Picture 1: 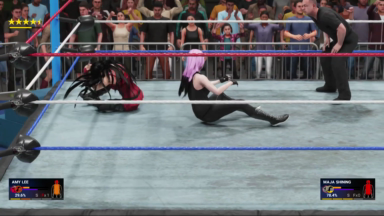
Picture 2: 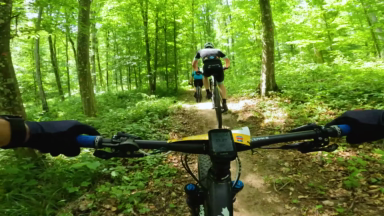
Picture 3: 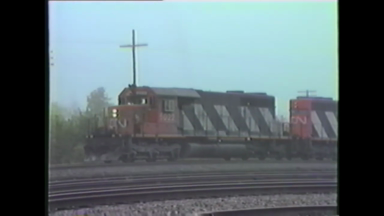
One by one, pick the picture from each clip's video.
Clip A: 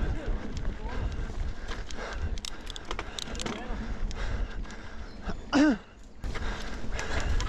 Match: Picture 2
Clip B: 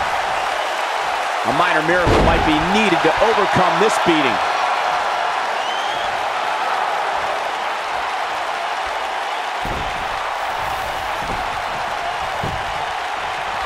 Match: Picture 1